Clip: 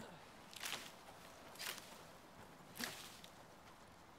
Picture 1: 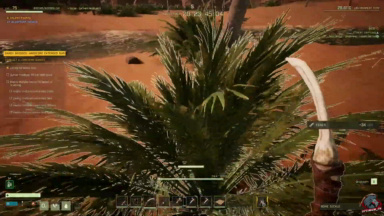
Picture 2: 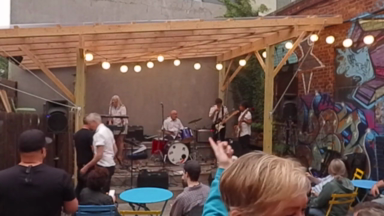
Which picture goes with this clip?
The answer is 1